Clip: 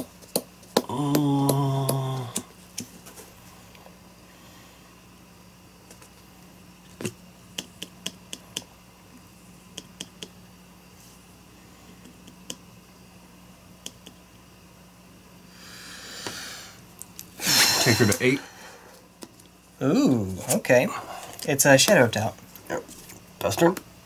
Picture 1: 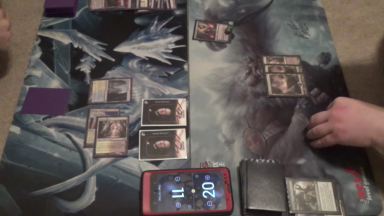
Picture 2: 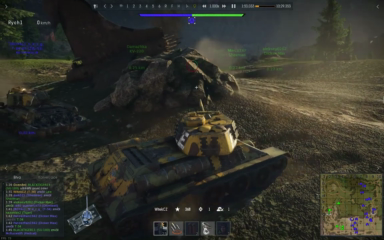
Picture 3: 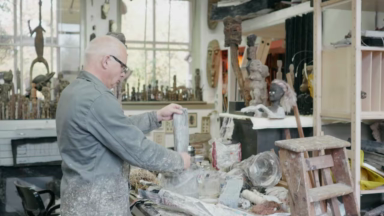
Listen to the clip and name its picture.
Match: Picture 1